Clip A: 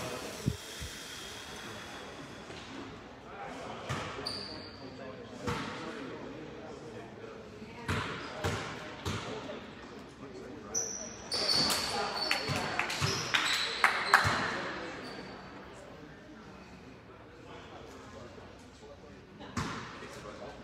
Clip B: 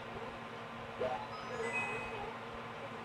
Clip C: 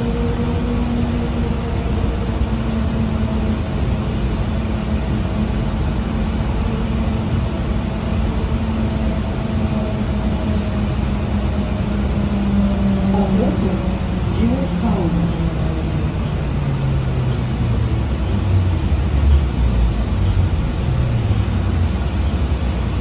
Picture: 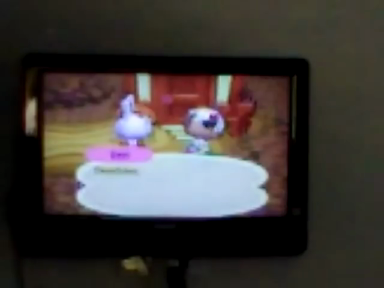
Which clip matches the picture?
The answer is B